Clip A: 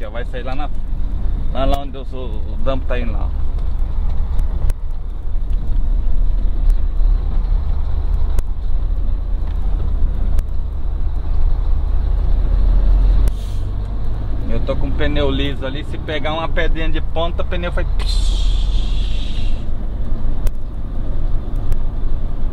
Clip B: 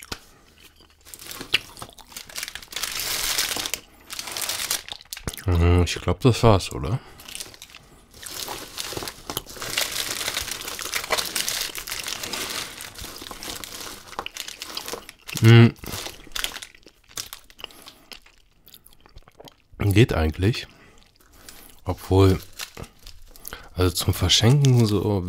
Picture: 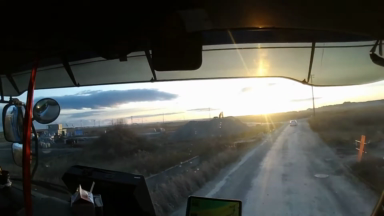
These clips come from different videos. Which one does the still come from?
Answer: A